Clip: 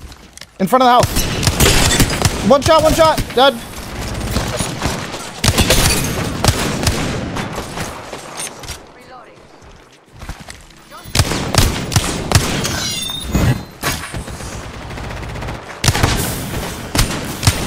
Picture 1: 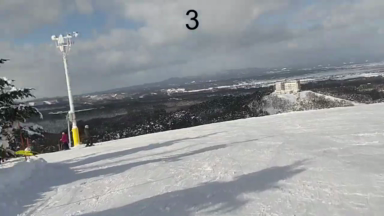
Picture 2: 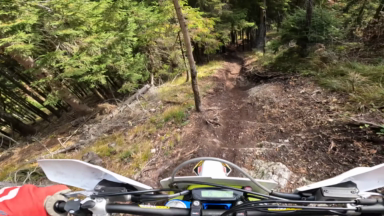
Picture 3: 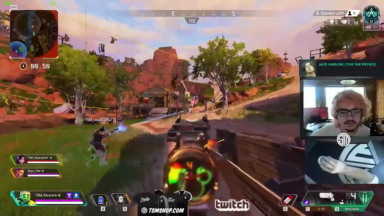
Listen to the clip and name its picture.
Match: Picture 3